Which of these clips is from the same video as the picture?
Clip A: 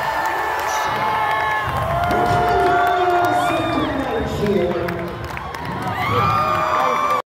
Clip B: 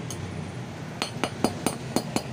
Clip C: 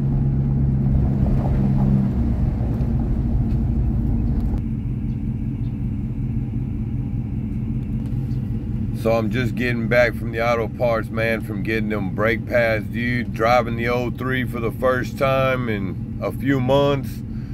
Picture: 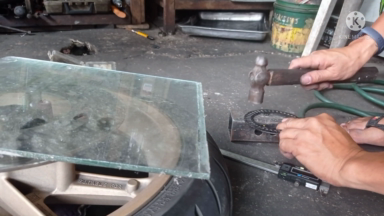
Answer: B